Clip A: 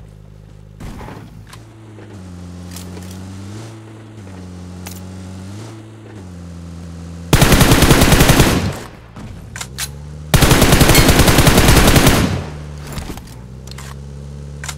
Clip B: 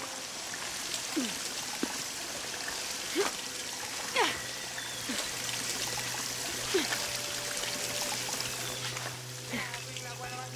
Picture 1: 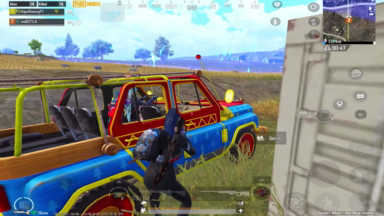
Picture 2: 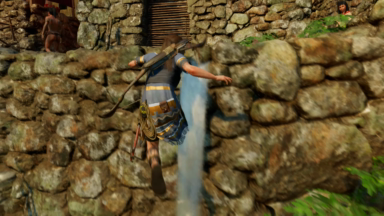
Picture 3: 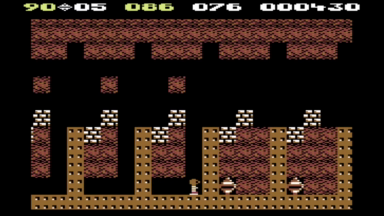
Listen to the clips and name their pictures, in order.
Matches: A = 1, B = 2